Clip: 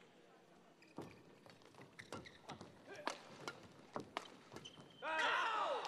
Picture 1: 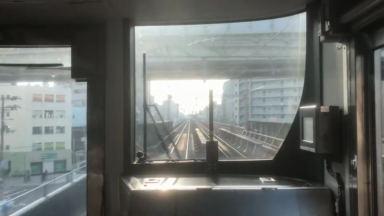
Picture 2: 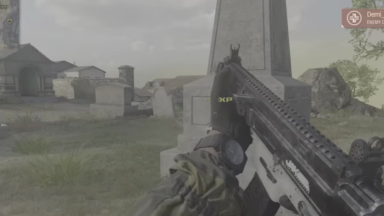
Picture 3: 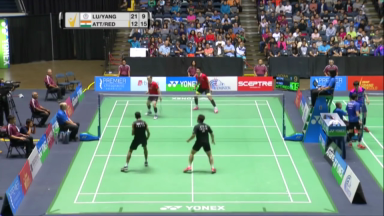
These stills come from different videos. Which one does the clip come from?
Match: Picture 3